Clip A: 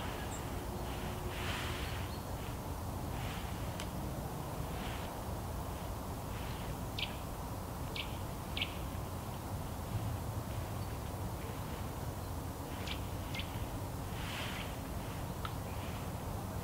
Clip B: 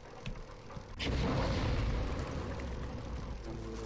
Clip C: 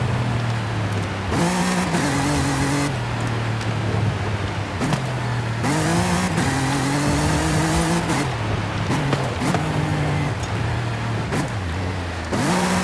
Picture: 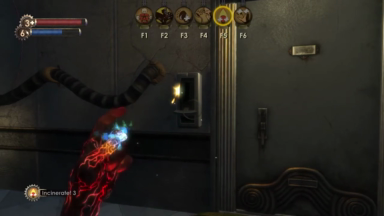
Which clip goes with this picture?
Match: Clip B